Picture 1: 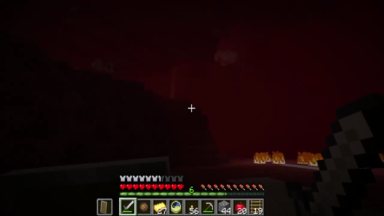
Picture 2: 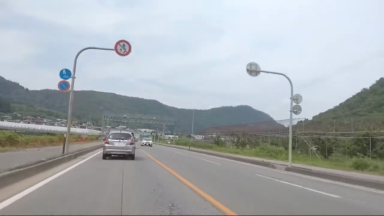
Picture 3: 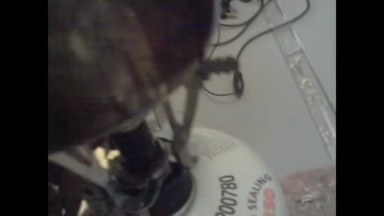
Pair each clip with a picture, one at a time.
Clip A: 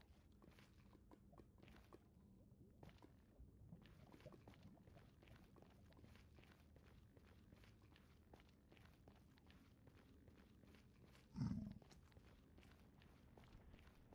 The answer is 1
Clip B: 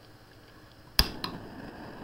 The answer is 3